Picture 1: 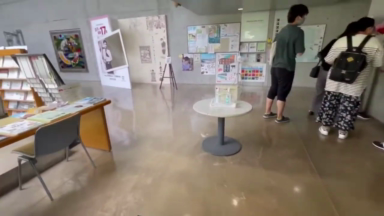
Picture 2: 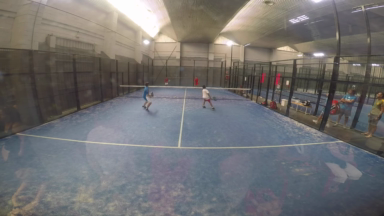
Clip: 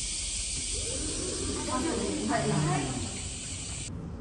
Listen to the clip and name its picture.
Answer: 1